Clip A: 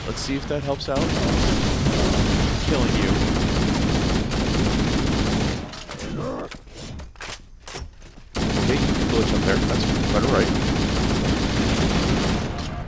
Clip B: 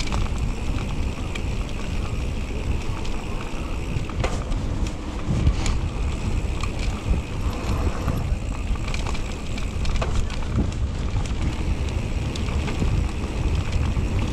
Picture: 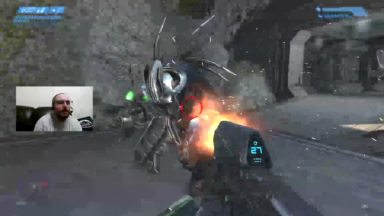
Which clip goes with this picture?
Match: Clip A